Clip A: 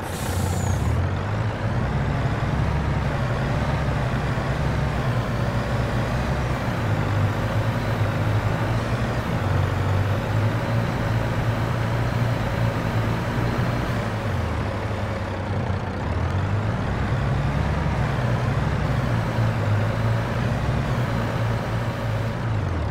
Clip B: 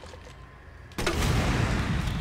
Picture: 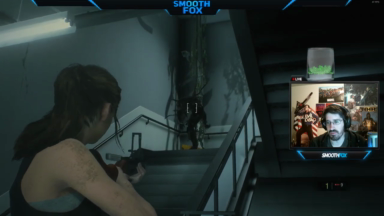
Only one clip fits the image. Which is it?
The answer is B